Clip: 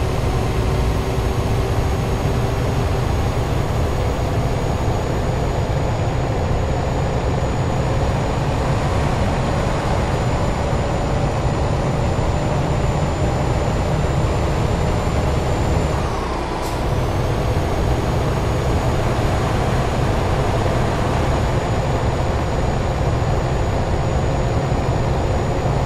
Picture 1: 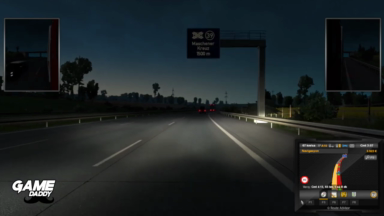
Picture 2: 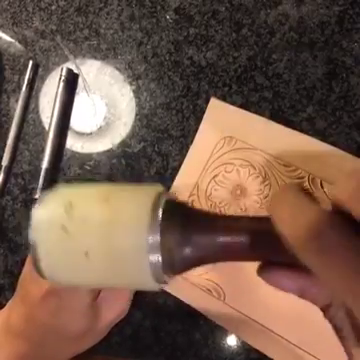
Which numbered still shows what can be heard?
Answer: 1